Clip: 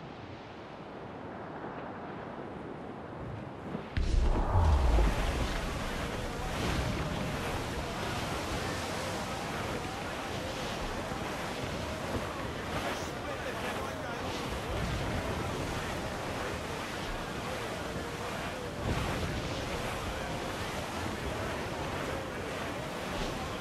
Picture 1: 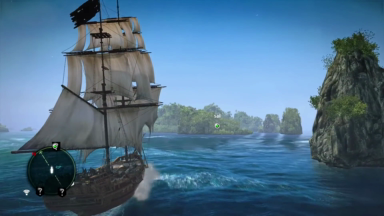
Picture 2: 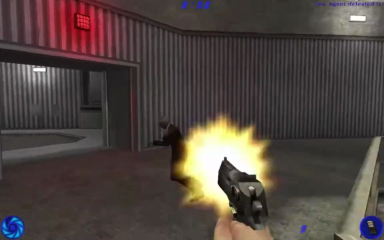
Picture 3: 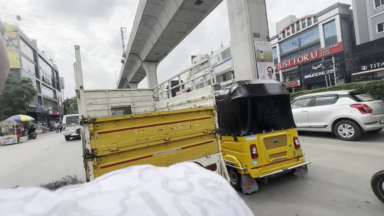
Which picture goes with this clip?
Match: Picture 1